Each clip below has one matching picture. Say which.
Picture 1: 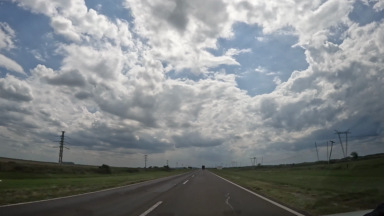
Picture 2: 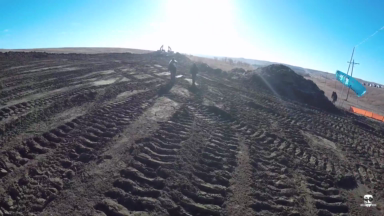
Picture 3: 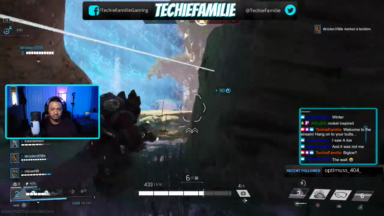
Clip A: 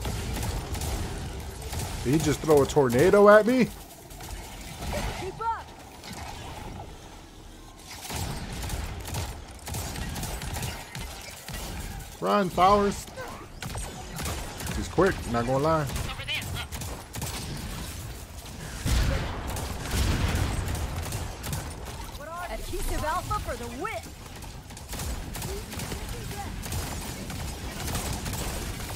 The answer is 3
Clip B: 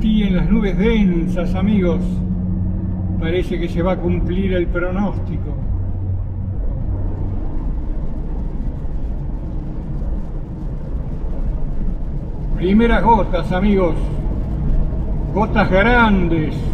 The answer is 1